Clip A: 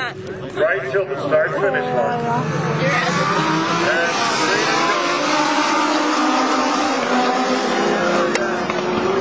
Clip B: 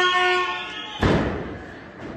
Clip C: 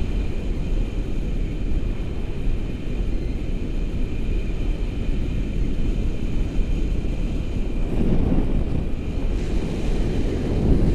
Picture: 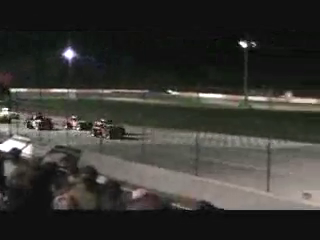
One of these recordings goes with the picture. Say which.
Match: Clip A